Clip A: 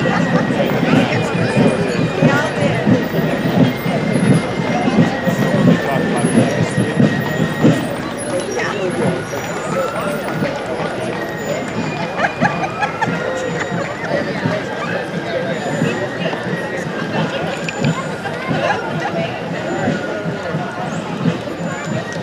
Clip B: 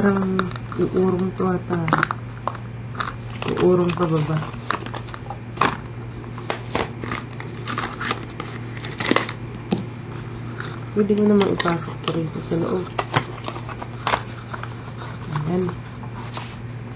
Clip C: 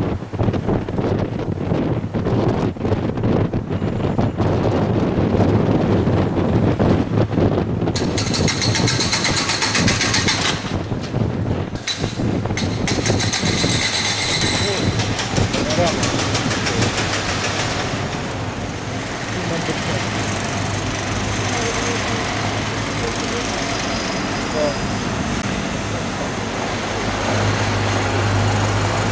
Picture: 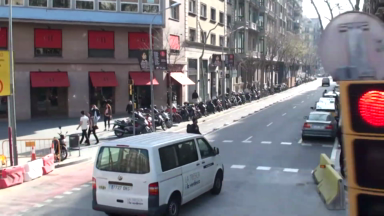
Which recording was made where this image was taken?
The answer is C